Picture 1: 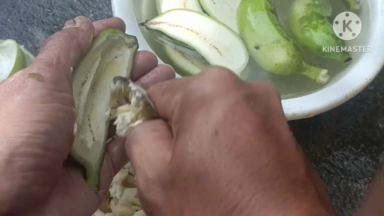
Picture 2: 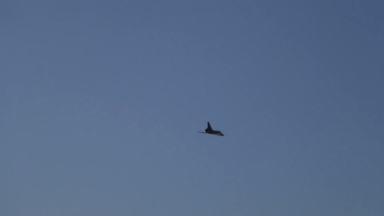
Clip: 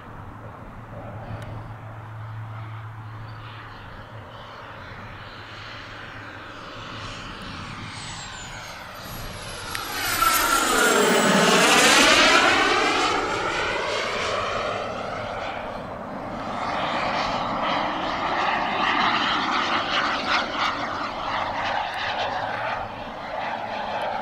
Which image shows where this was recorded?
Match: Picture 2